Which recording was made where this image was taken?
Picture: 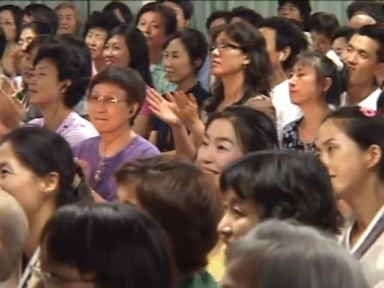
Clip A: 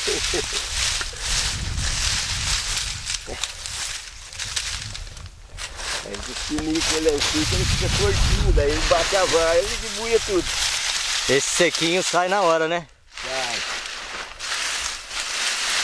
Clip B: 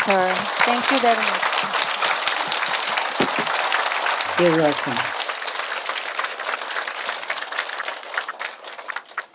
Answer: B